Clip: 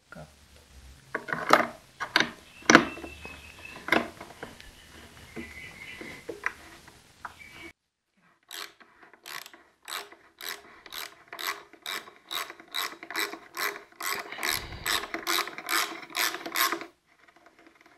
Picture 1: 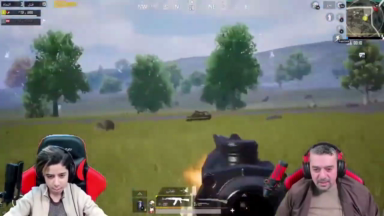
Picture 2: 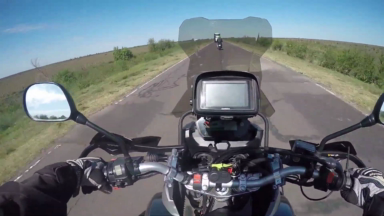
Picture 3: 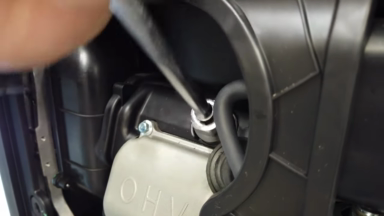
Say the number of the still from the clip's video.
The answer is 3